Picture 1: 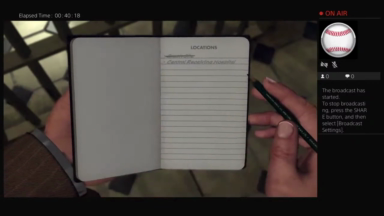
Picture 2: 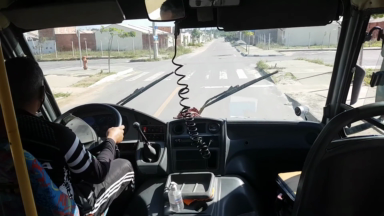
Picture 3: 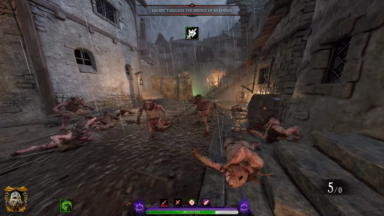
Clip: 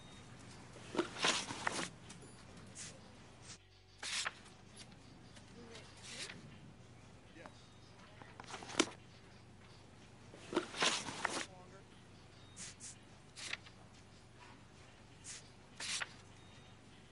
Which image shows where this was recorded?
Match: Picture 1